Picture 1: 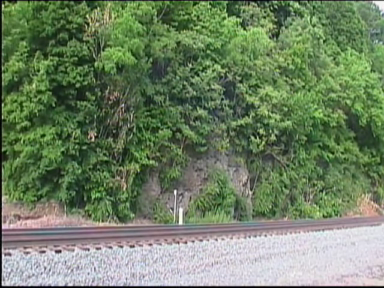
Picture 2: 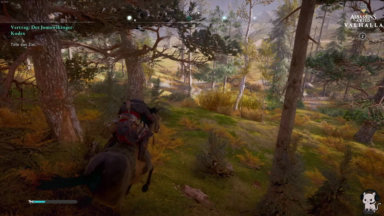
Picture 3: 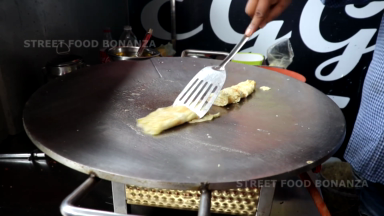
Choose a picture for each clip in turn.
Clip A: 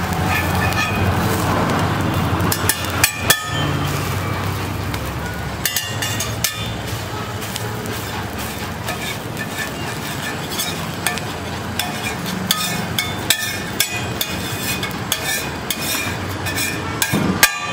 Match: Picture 3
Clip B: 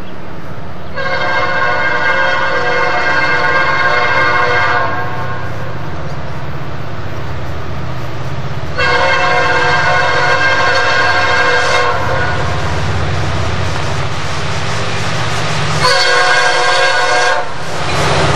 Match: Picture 1